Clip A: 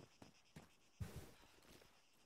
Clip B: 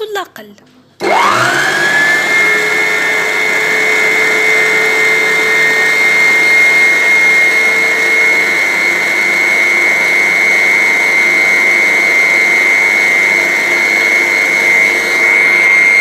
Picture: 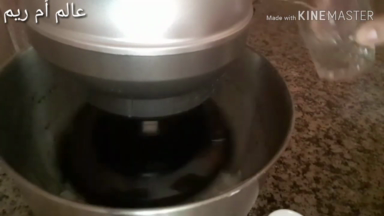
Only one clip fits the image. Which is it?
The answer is B